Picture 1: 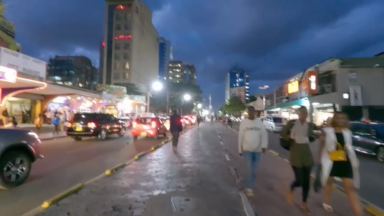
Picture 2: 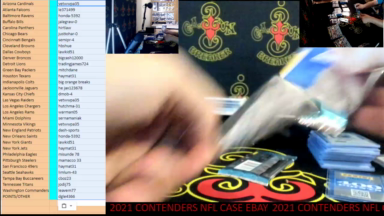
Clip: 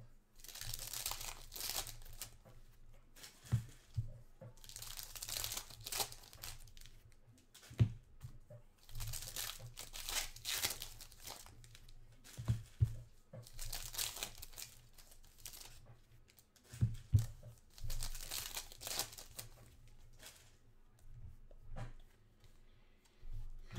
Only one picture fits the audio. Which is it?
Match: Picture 2